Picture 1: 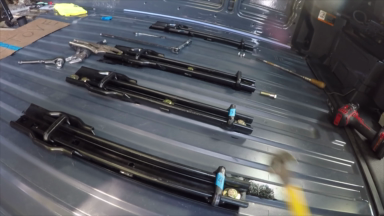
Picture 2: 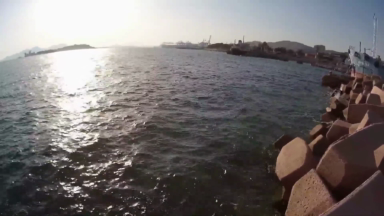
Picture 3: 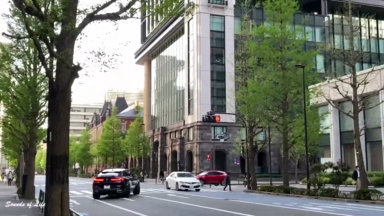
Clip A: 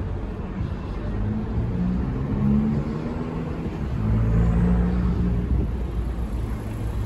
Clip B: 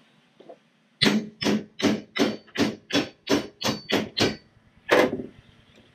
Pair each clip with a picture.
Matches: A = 3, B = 1